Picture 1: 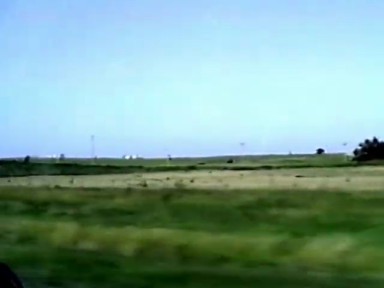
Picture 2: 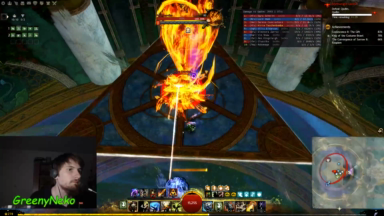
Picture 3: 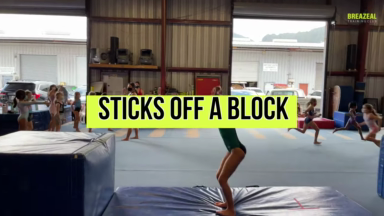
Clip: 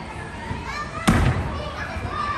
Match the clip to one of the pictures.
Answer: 3